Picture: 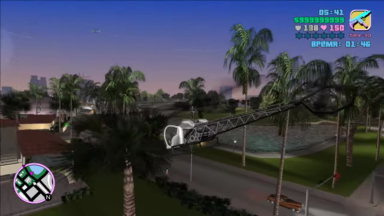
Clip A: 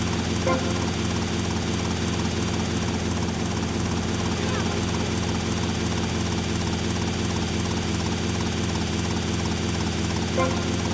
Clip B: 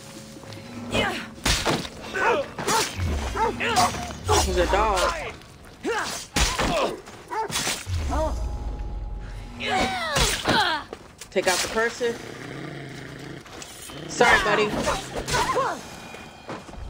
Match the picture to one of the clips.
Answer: A